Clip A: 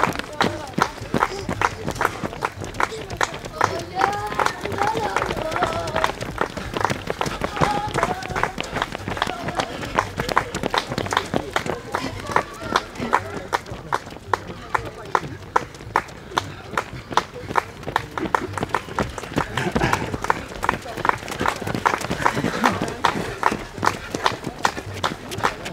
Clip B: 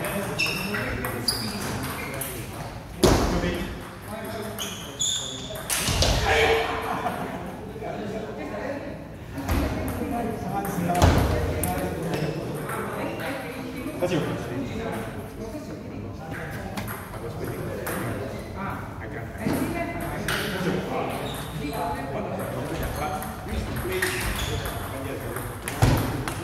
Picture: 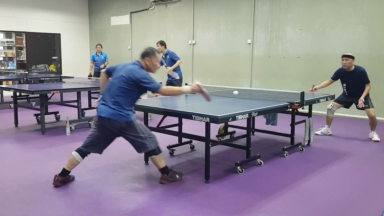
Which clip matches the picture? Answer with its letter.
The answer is B